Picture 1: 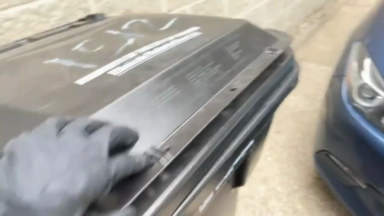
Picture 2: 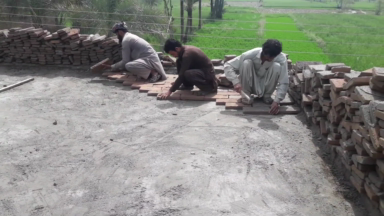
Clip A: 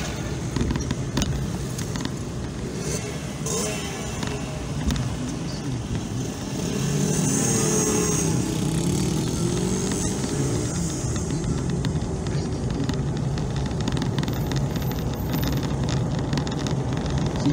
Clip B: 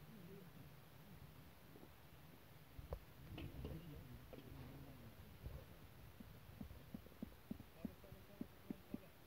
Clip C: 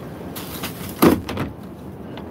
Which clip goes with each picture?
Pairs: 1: C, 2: B